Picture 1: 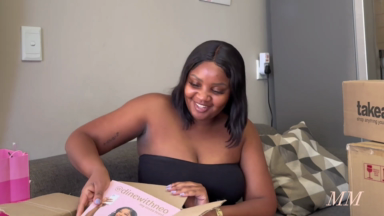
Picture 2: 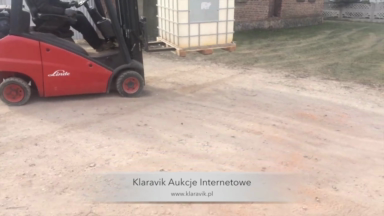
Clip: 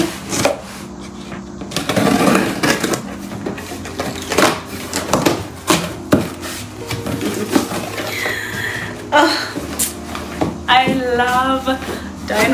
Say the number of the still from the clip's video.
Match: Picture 1